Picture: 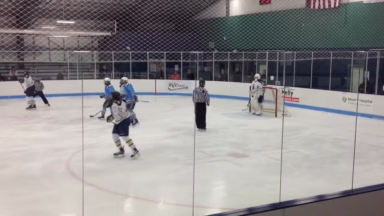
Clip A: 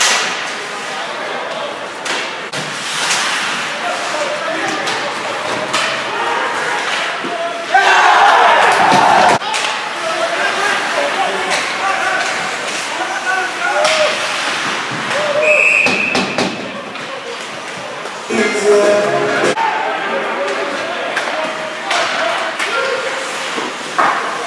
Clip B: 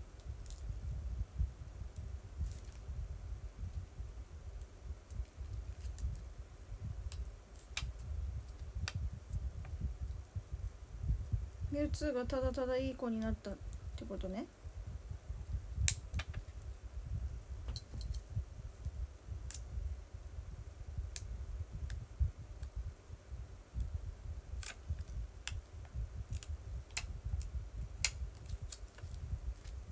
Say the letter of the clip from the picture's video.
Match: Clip A